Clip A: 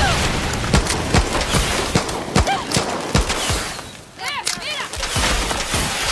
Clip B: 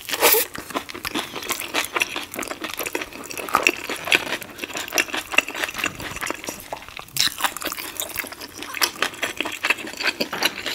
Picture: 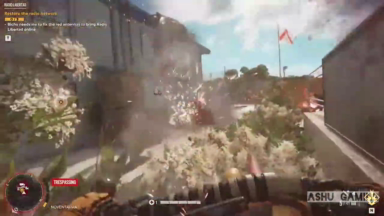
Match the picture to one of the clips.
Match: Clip A